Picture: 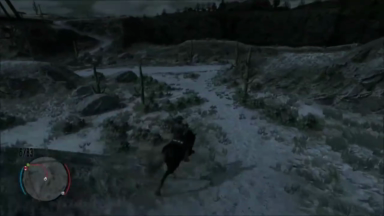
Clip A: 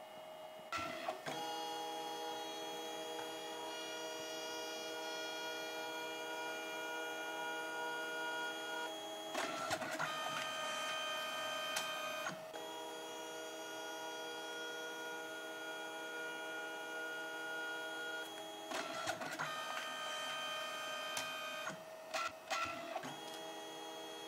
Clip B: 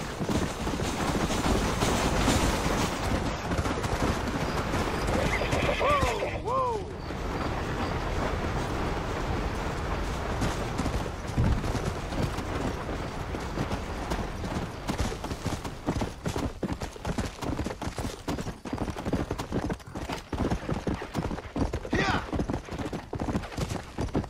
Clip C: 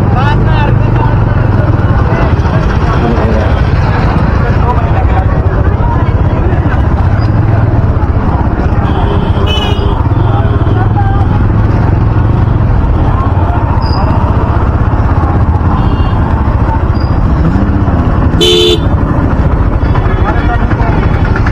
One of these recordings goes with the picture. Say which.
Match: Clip B